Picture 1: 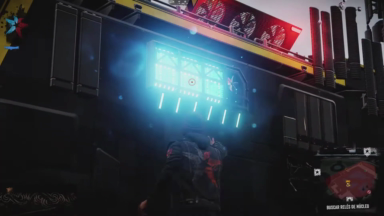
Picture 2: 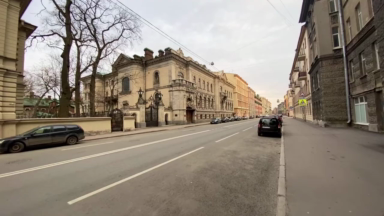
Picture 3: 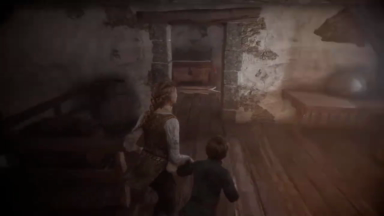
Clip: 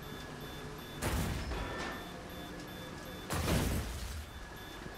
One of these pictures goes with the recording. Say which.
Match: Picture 1